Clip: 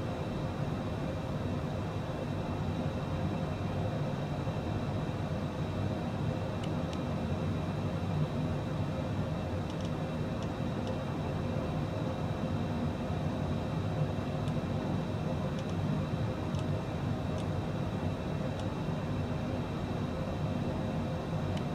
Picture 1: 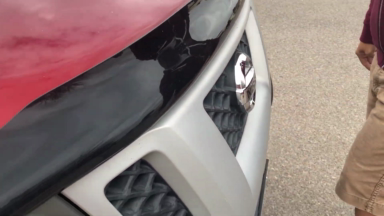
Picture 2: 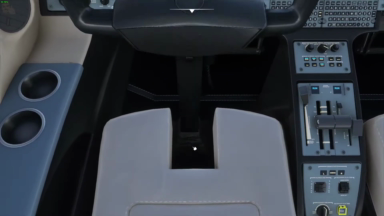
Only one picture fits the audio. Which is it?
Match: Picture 2